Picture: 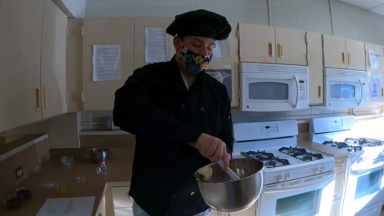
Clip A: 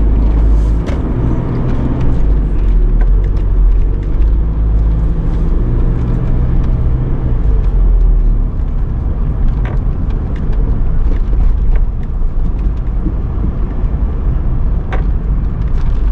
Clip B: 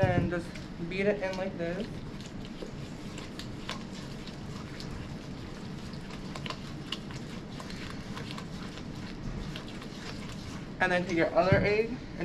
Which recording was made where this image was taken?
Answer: B